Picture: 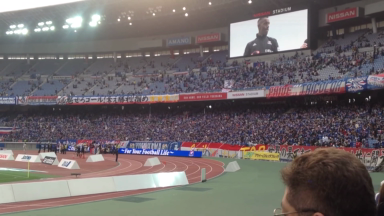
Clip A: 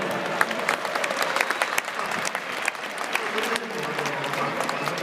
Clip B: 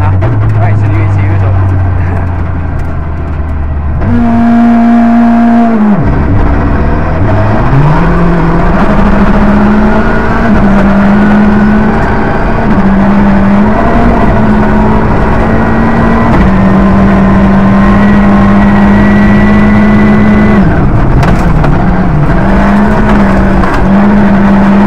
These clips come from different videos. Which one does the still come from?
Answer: A